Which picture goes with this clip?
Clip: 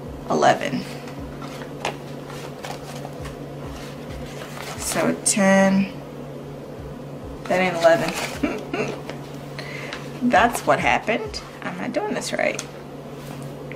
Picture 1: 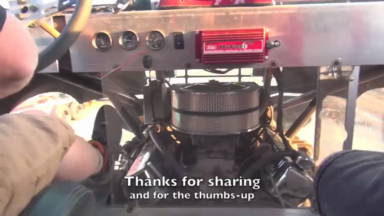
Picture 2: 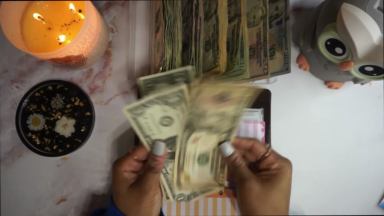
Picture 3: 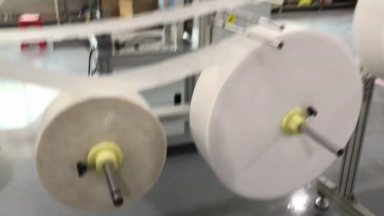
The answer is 2